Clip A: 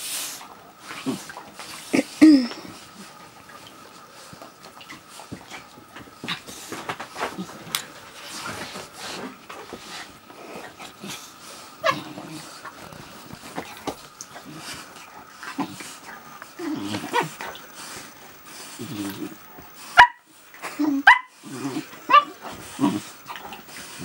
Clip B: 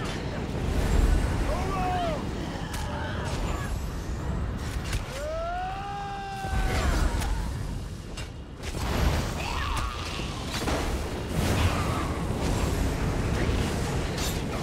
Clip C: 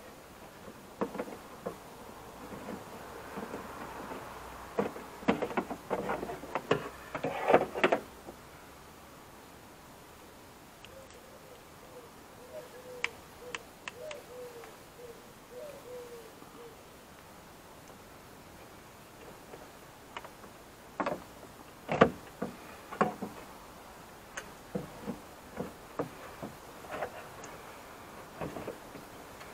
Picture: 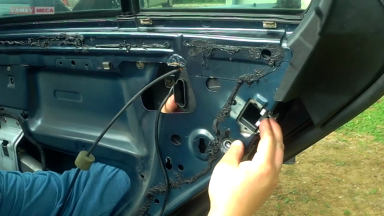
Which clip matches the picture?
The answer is C